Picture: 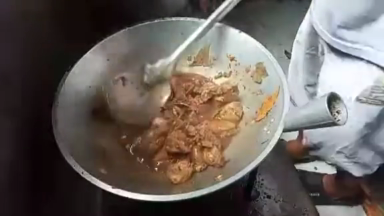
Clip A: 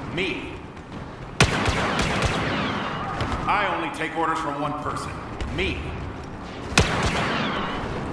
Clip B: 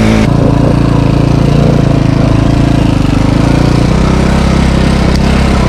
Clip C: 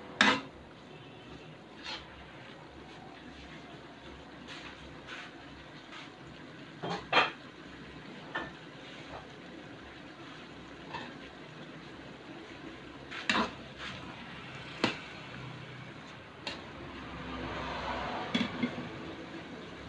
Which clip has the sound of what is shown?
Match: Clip C